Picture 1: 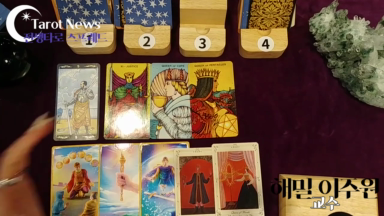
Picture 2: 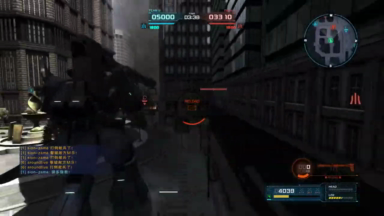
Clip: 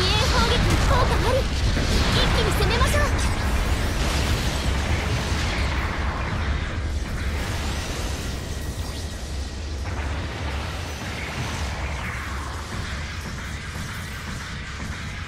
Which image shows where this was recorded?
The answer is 2